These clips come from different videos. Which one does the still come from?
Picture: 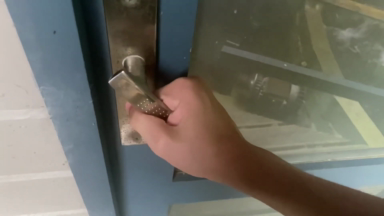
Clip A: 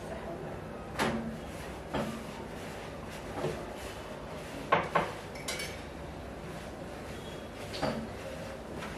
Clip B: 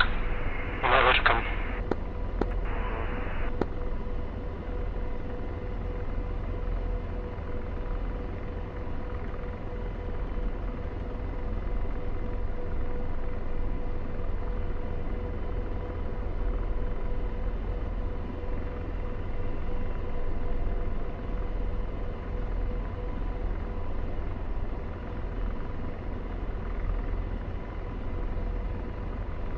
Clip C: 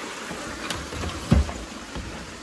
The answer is C